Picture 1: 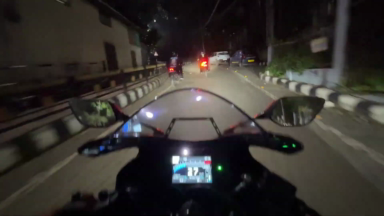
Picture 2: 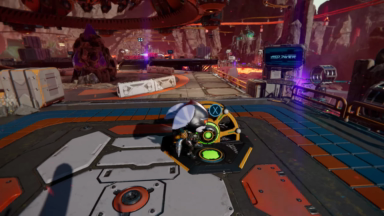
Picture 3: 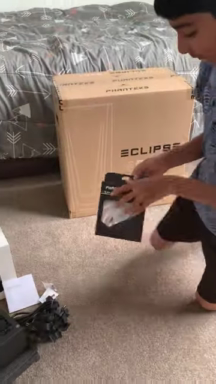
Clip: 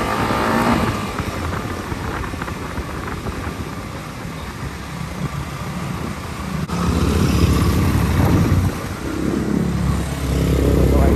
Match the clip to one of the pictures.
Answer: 1